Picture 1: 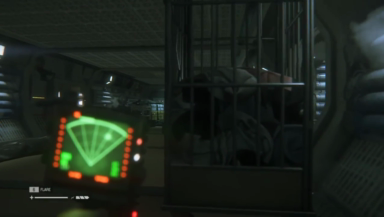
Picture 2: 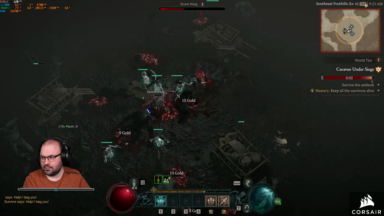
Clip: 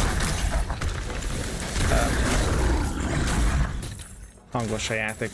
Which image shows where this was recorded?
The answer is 2